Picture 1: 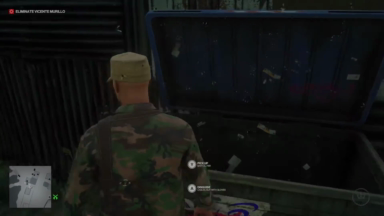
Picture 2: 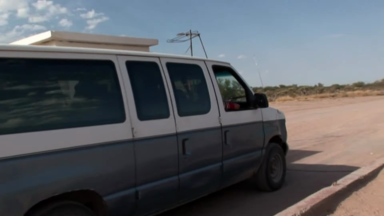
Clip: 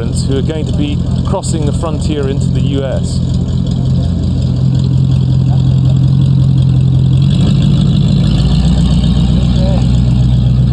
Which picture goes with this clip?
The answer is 2